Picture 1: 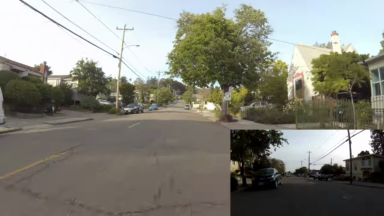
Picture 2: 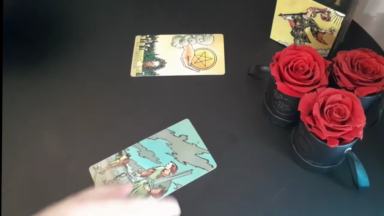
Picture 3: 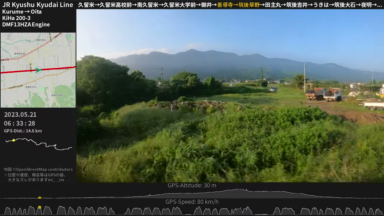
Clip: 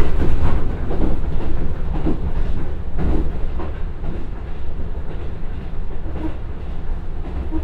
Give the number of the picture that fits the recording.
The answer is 3